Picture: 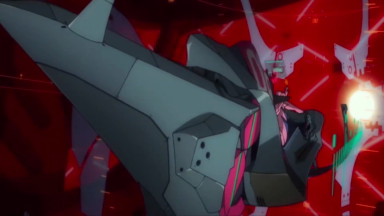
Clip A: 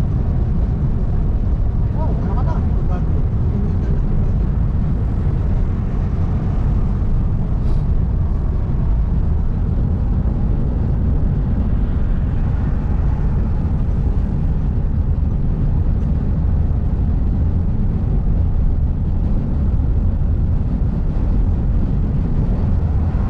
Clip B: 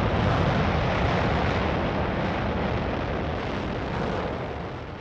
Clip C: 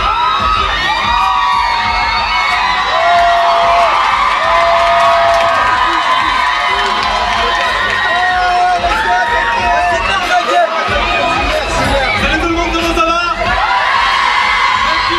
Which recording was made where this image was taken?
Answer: B